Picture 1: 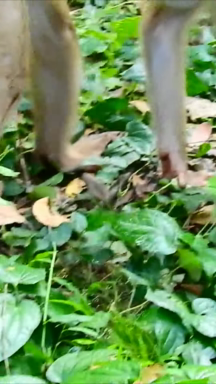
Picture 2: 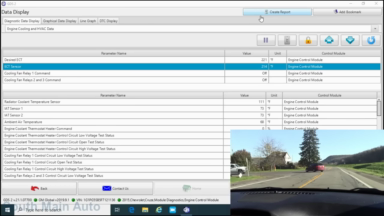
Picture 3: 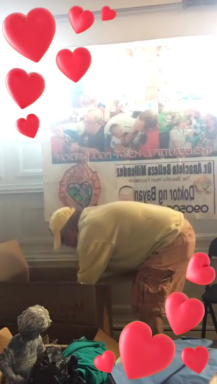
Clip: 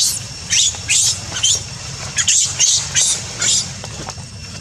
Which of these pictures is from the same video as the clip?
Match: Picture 1